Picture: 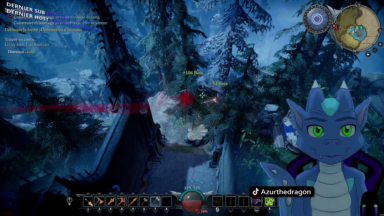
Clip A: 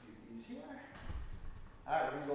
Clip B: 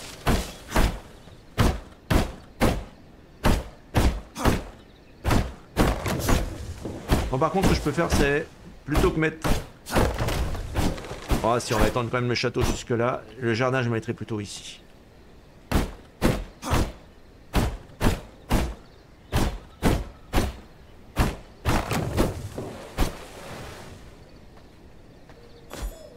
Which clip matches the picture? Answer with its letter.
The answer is B